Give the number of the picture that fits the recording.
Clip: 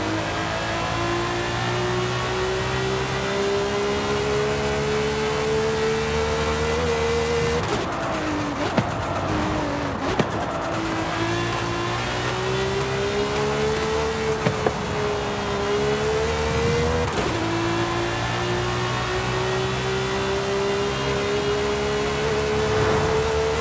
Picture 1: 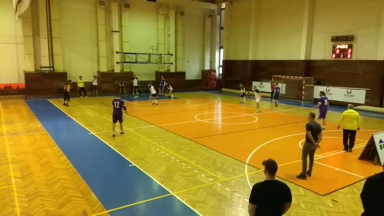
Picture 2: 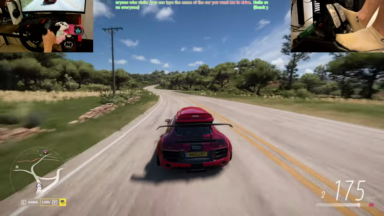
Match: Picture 2